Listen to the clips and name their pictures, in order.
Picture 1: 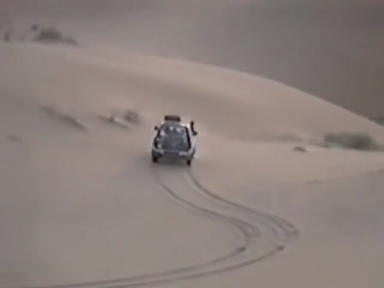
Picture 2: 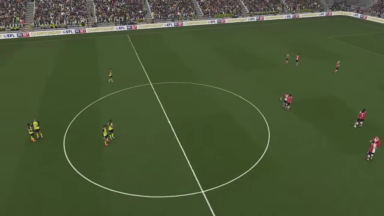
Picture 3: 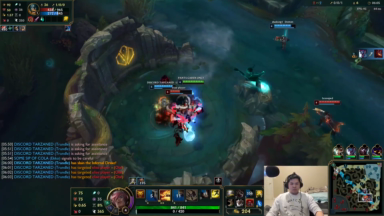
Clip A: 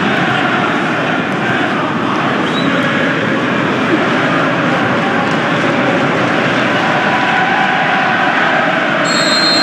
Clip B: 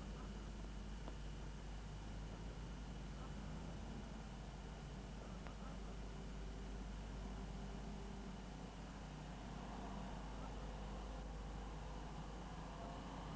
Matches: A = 2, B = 1